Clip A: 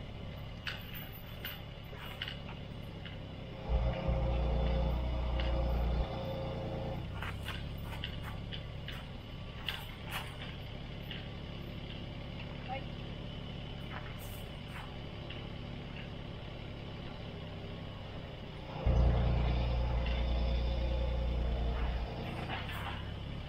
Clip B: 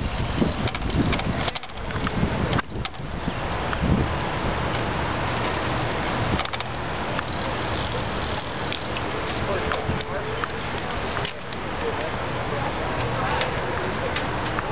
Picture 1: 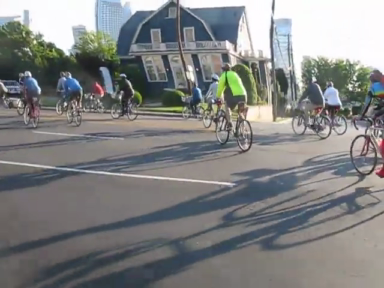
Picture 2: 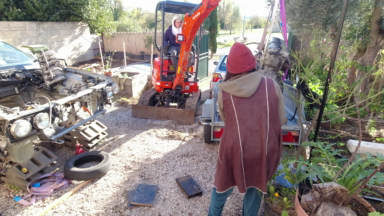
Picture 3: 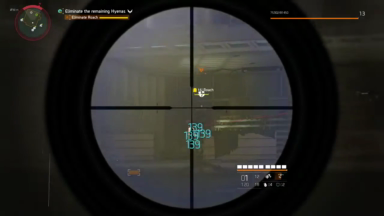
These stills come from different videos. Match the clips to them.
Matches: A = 2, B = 1